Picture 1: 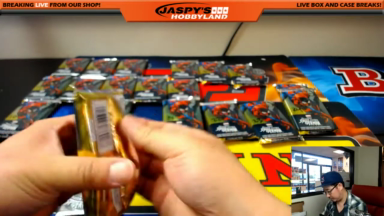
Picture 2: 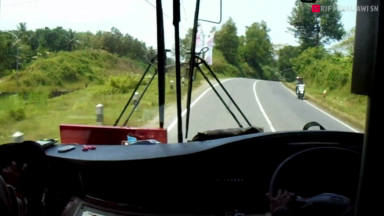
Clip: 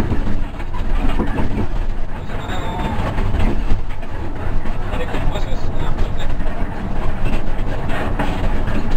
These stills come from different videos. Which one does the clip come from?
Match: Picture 2